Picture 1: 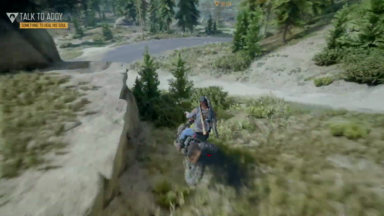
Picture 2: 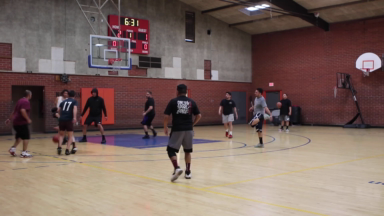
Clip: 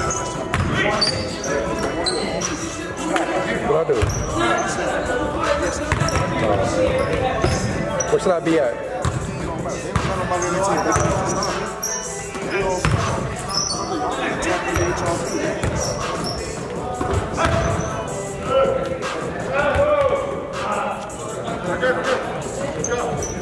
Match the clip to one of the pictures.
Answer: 2